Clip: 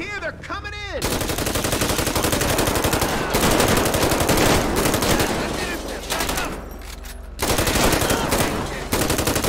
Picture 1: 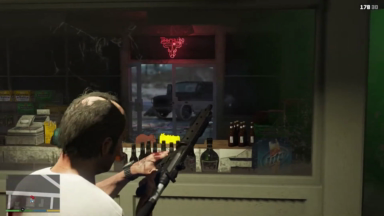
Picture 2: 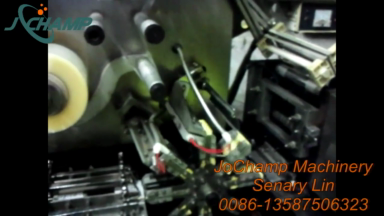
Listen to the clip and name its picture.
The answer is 1